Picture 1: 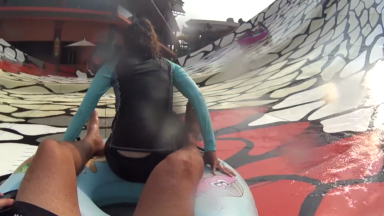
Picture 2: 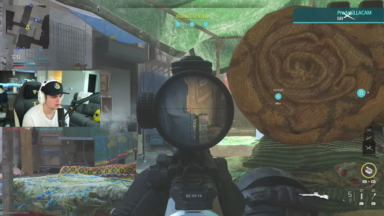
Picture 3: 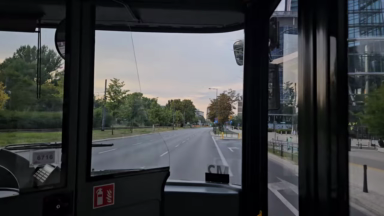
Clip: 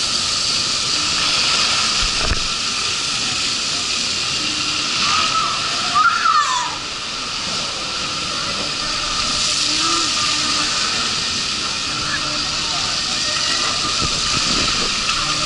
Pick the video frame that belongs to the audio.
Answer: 1